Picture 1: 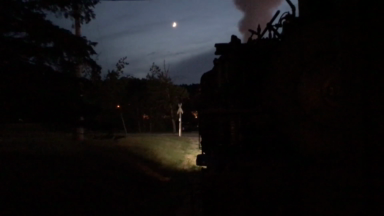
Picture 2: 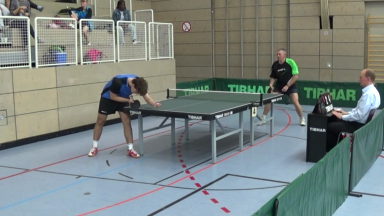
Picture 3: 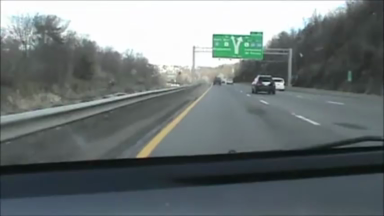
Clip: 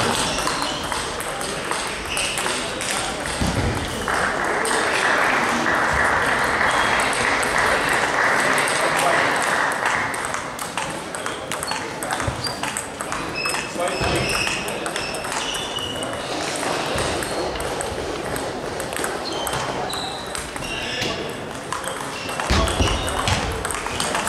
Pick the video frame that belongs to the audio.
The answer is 2